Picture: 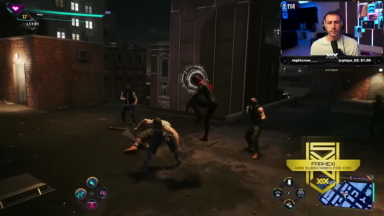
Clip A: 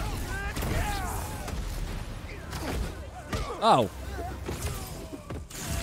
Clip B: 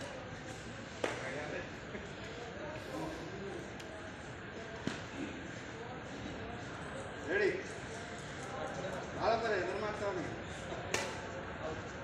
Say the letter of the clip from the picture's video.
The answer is A